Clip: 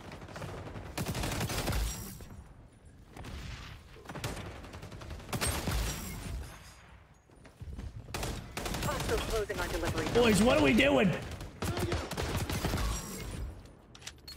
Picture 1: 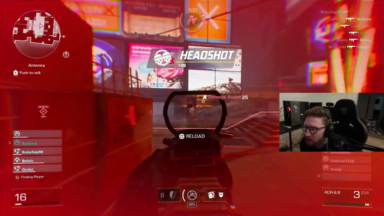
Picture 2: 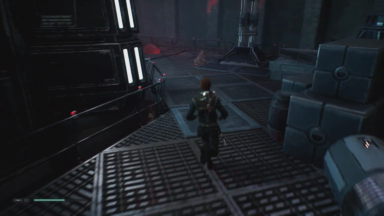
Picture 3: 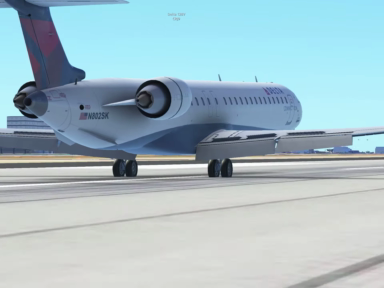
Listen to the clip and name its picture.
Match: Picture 1